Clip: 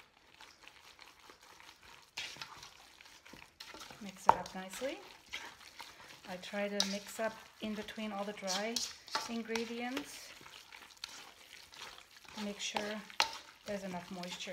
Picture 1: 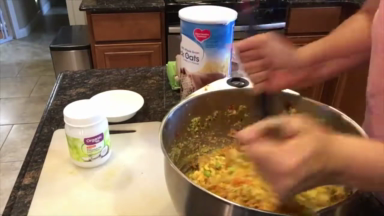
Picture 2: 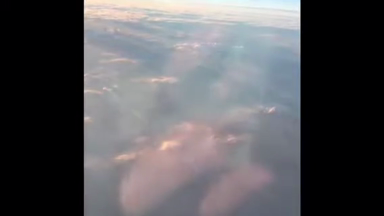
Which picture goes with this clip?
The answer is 1